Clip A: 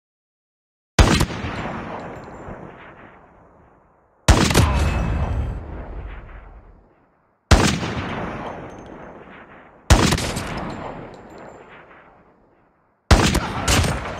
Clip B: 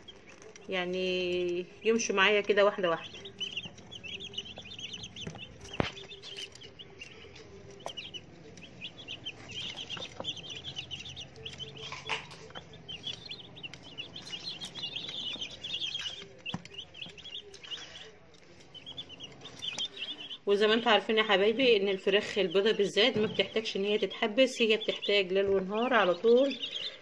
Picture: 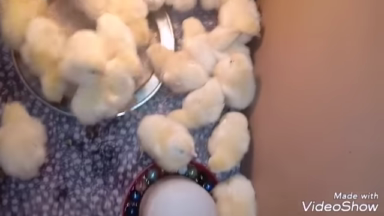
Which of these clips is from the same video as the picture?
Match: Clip B